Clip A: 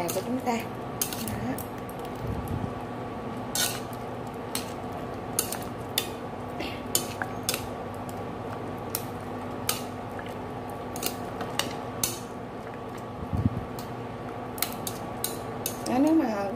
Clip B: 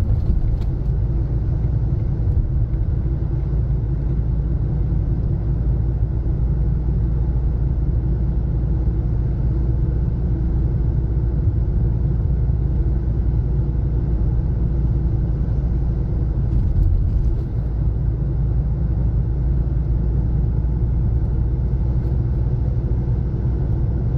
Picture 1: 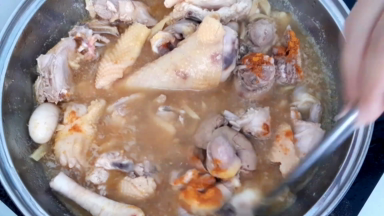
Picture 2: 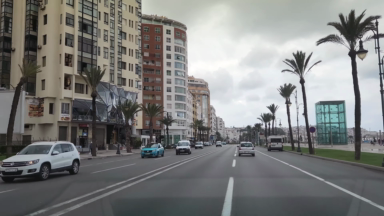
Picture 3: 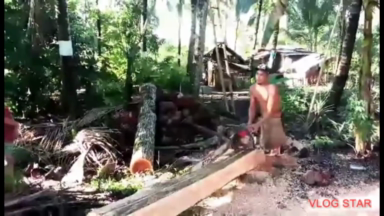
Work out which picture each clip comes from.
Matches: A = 1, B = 2